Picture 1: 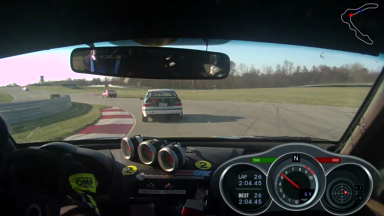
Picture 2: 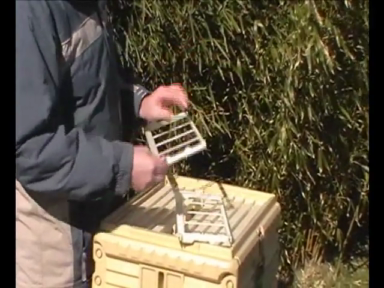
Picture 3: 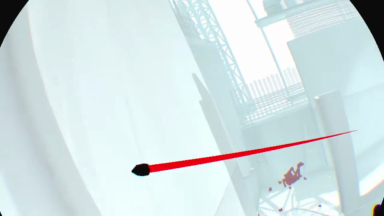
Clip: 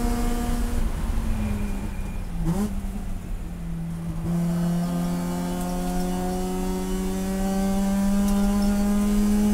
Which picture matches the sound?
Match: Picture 1